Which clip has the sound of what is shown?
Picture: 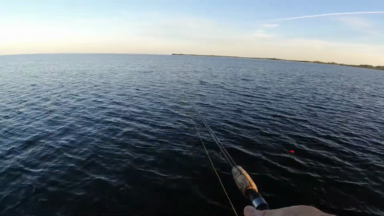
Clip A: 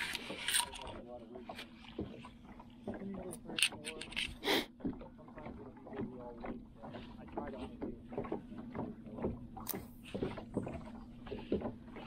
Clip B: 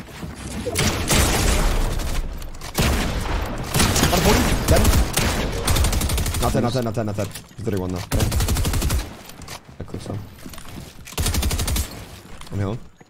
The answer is A